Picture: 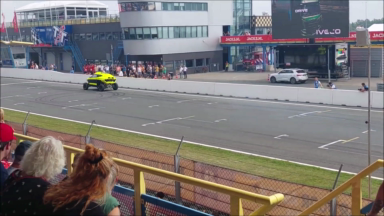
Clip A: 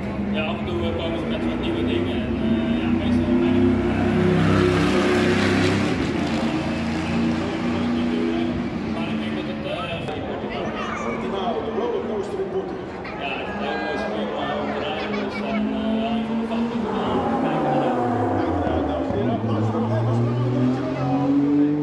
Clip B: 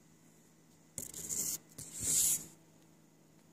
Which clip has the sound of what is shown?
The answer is A